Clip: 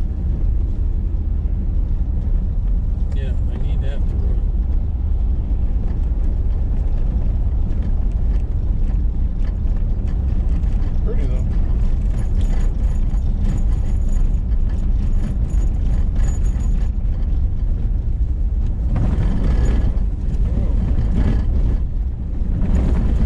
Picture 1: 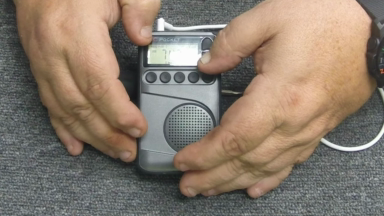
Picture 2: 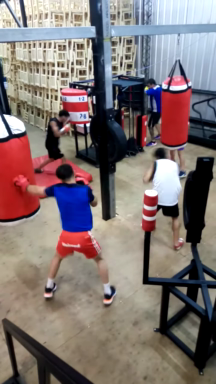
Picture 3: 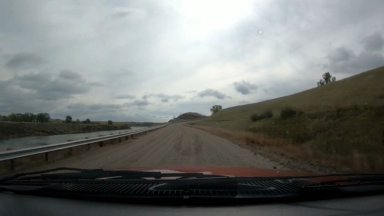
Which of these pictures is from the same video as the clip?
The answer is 3